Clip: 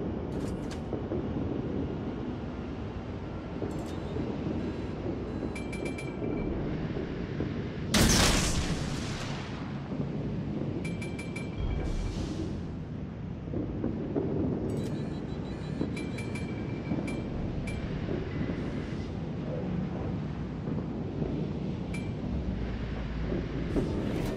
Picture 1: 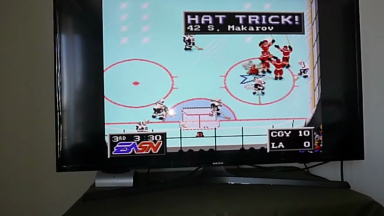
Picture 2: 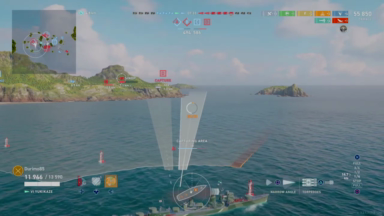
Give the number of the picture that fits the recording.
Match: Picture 2